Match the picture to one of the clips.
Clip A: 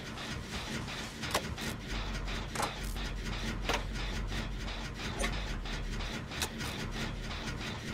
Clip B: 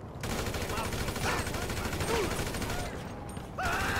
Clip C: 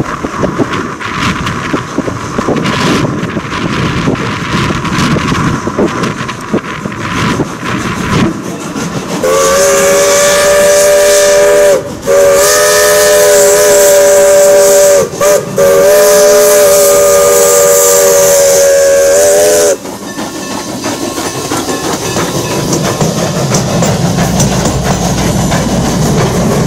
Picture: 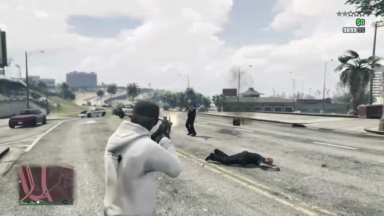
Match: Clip B